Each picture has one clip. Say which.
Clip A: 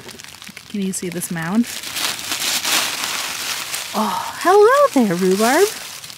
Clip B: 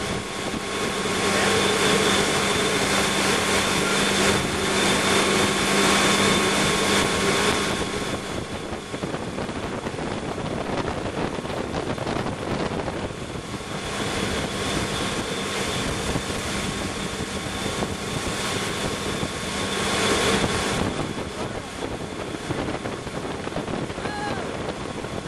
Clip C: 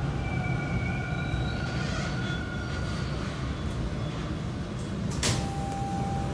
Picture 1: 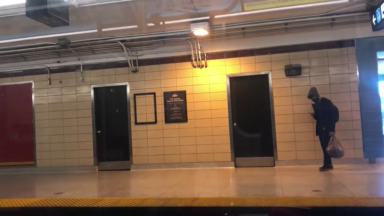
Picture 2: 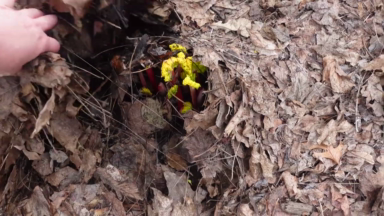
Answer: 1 C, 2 A